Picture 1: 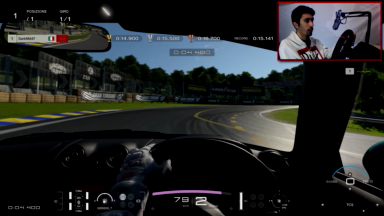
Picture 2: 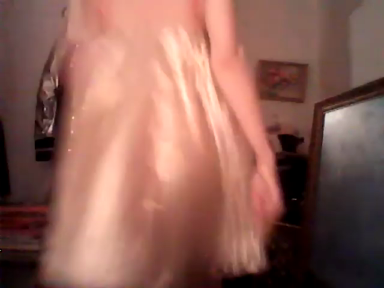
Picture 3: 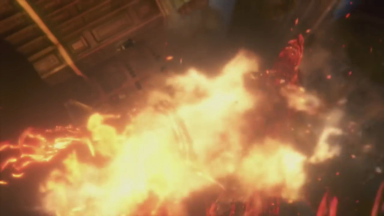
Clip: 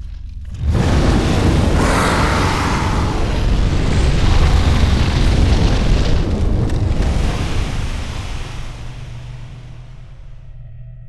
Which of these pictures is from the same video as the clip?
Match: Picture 3